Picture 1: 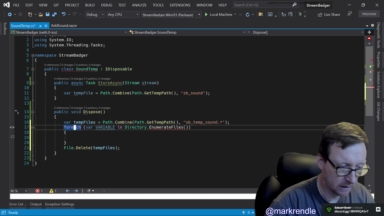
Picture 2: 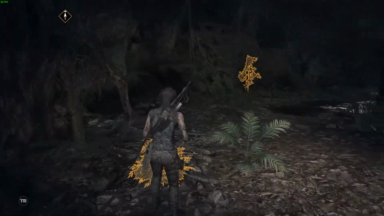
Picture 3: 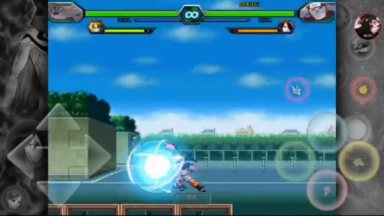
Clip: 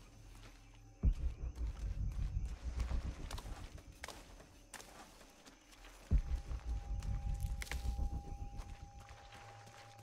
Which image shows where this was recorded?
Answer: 2